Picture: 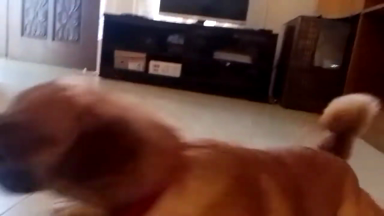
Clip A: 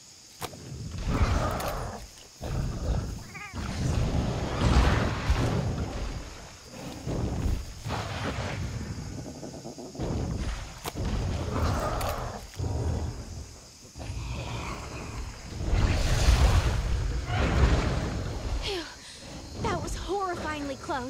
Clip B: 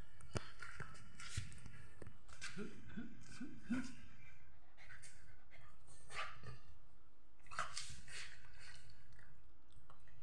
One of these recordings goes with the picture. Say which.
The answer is B